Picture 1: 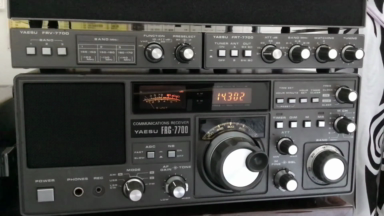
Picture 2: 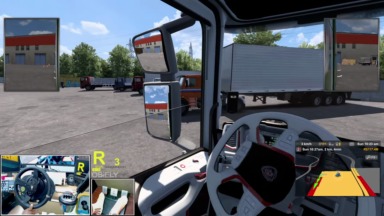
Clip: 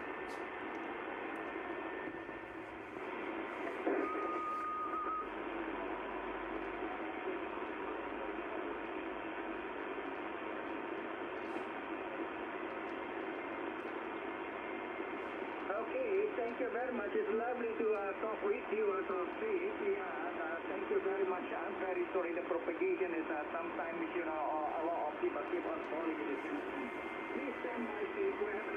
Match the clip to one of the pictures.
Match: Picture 1